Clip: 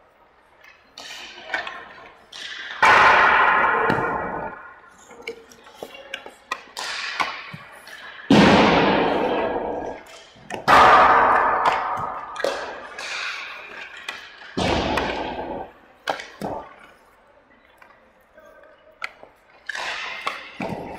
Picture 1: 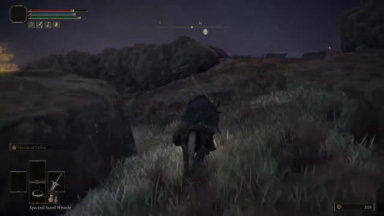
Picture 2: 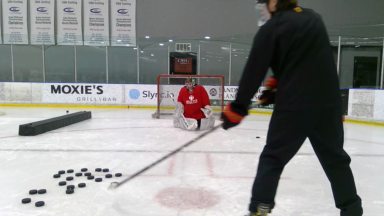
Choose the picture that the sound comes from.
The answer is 2